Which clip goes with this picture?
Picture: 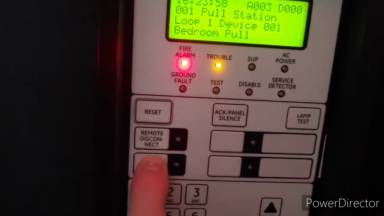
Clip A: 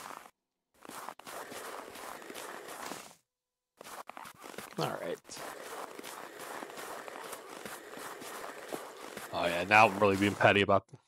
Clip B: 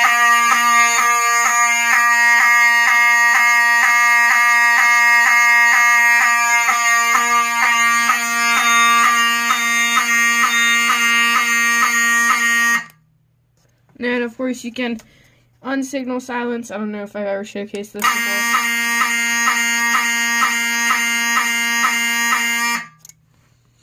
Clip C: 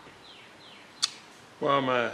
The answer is B